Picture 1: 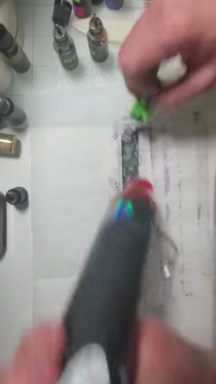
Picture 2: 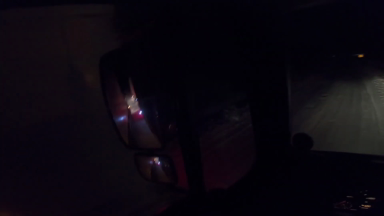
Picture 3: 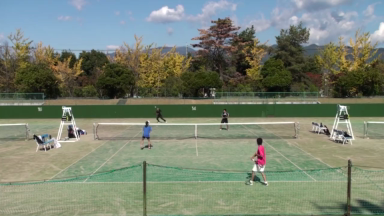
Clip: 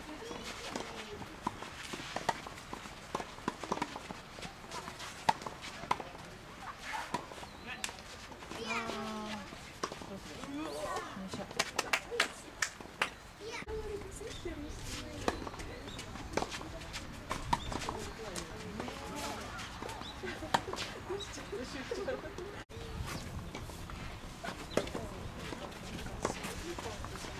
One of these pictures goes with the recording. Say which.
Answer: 3